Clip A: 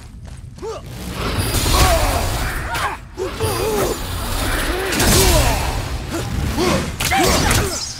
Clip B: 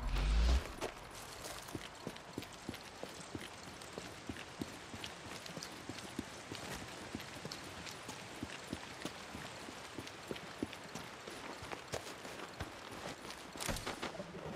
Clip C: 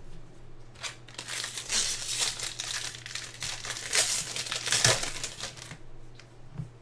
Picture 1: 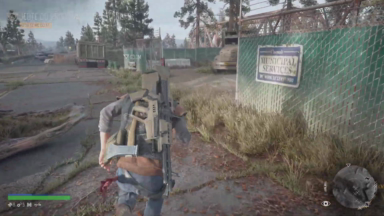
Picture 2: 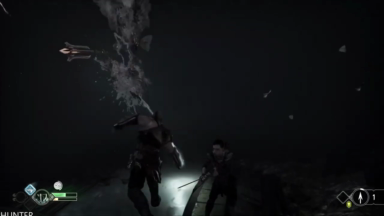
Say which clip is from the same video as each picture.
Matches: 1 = B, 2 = A